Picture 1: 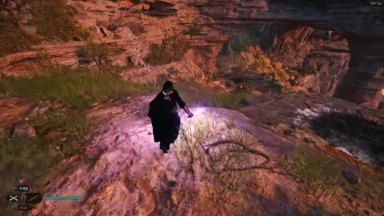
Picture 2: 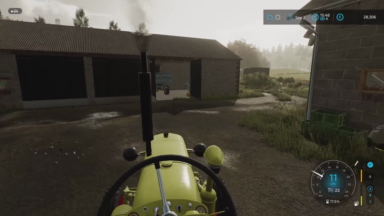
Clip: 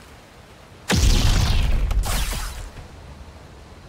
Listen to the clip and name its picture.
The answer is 1